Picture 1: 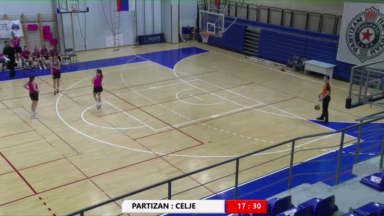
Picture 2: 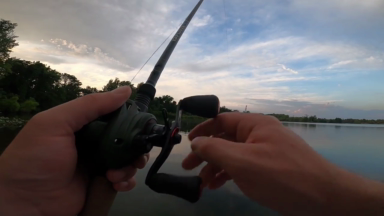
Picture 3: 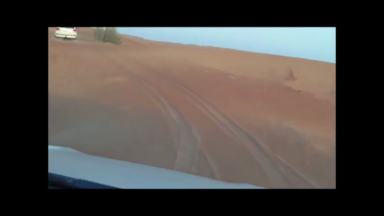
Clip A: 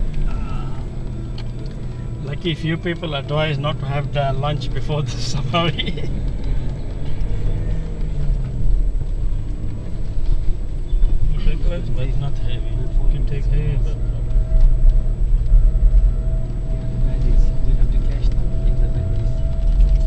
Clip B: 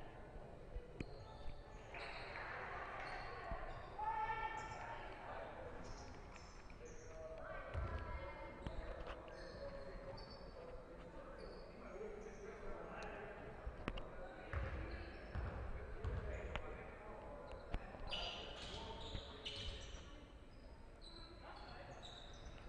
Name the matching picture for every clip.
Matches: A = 3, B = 1